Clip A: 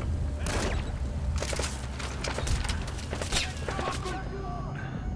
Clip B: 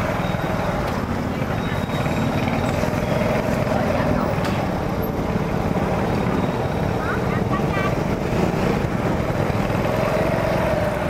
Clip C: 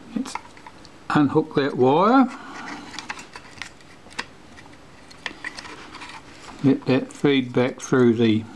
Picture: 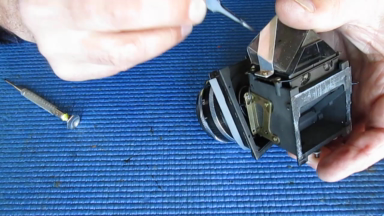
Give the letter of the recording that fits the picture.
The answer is C